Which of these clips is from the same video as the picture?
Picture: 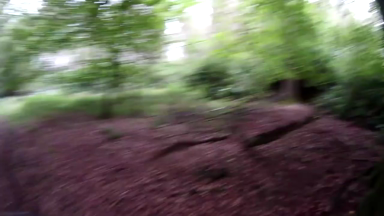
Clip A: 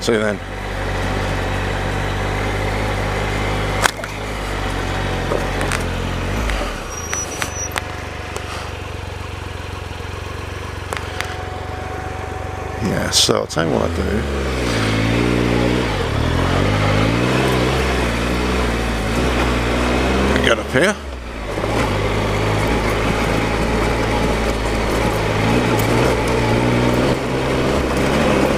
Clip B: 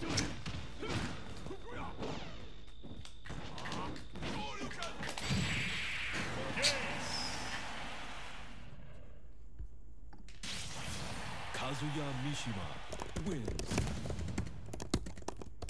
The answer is A